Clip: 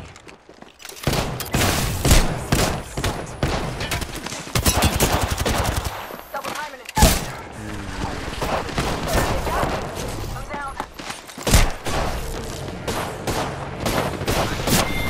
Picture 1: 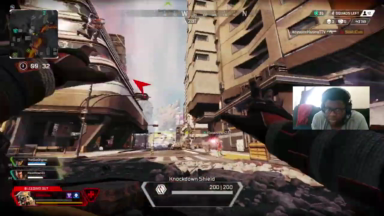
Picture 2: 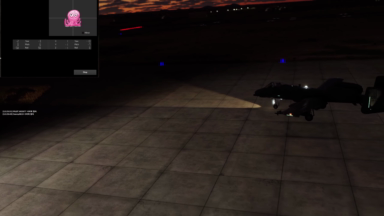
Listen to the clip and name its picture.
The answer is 1